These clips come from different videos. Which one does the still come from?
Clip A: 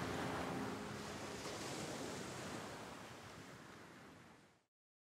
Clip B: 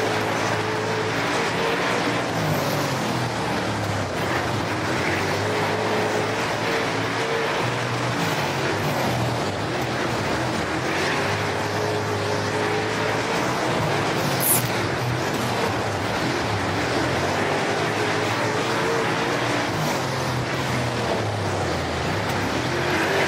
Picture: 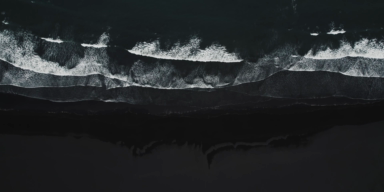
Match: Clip A